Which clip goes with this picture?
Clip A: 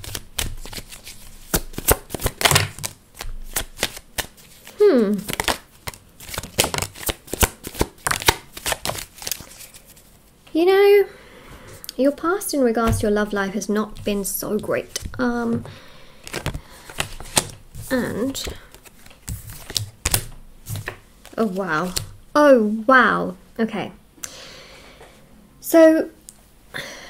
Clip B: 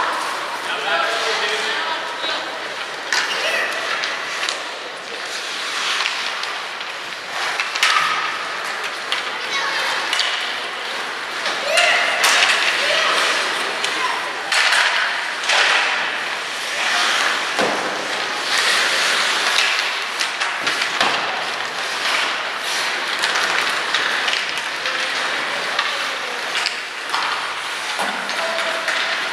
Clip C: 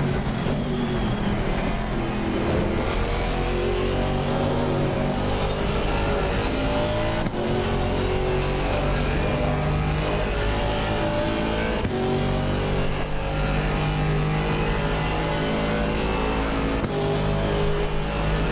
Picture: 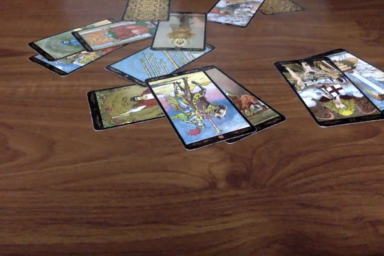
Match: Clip A